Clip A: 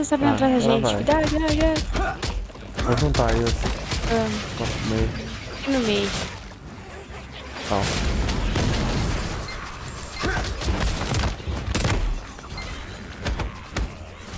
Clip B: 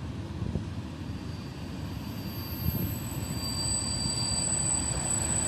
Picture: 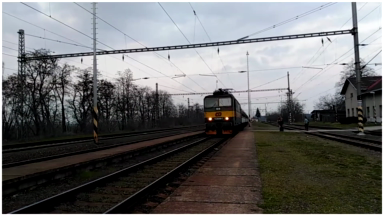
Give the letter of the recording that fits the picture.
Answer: B